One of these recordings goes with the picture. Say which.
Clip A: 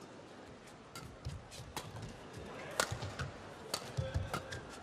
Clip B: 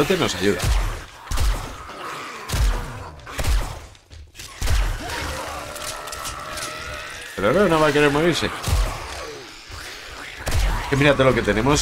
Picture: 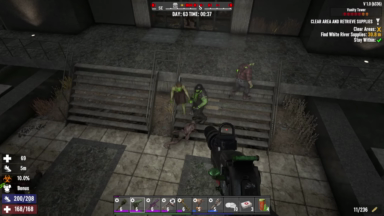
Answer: B